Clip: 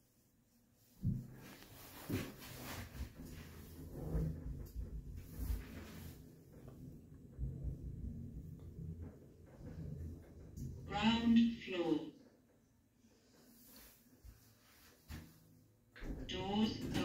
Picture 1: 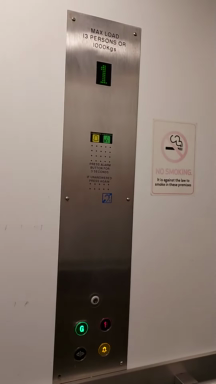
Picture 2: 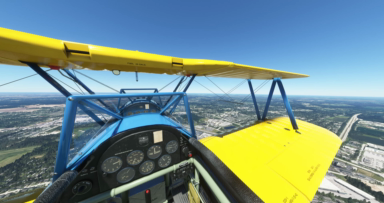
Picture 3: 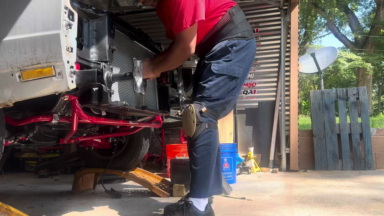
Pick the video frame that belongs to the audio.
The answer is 1